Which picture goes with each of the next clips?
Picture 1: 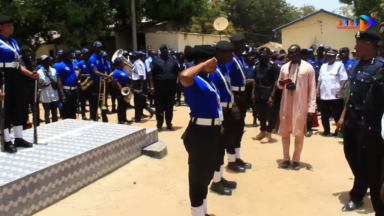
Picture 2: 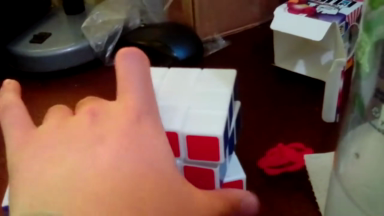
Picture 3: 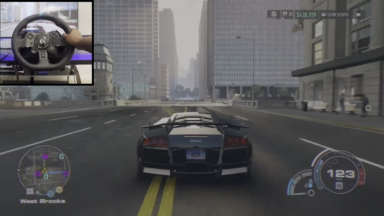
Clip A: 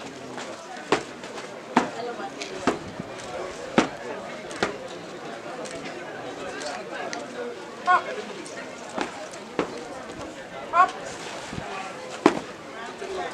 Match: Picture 1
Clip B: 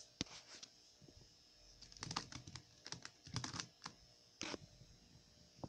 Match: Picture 2